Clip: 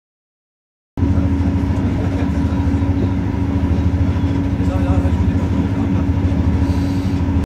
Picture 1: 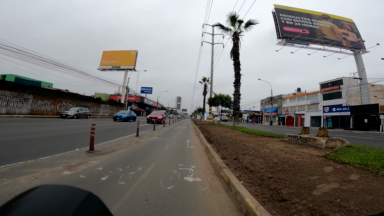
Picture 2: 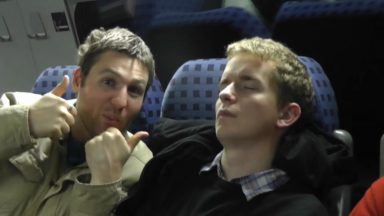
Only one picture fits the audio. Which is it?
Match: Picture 2